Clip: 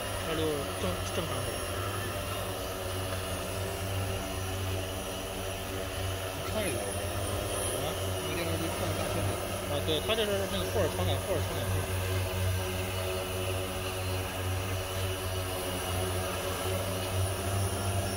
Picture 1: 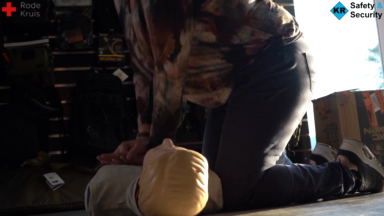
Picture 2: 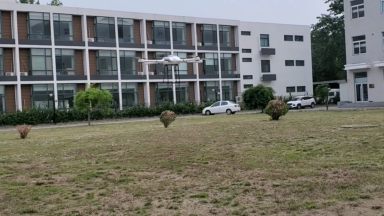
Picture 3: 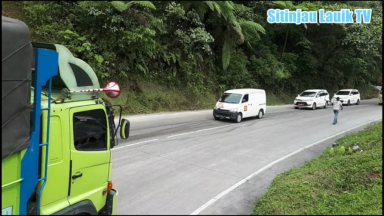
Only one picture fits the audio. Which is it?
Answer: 2